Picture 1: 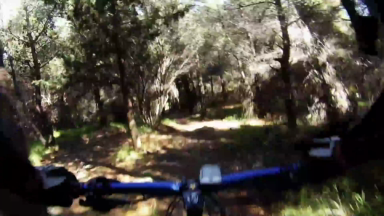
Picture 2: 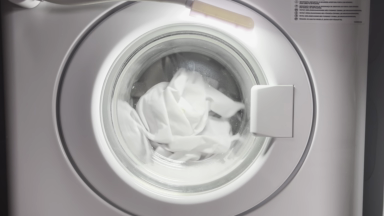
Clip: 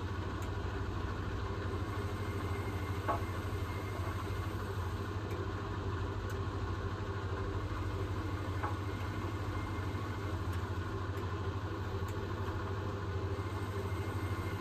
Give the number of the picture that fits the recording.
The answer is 2